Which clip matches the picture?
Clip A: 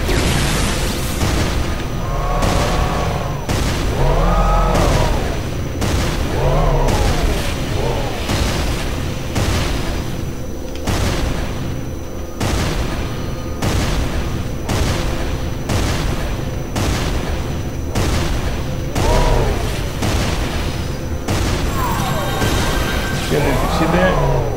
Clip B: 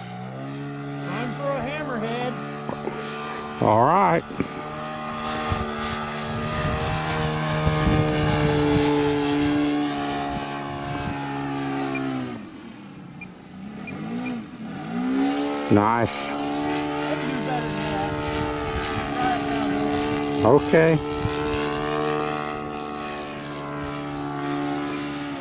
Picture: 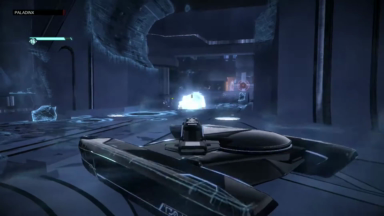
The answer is A